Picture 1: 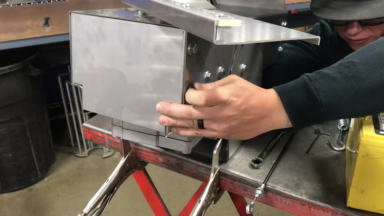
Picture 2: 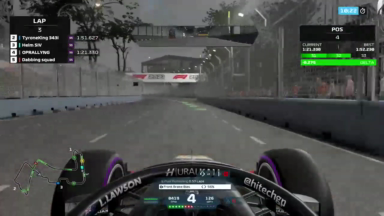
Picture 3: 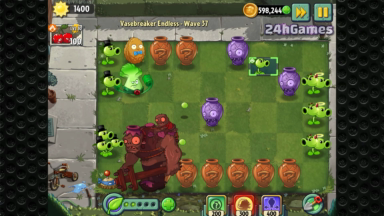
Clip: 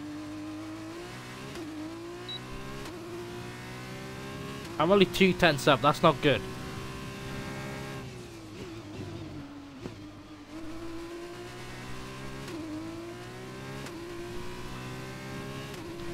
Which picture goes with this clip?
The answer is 2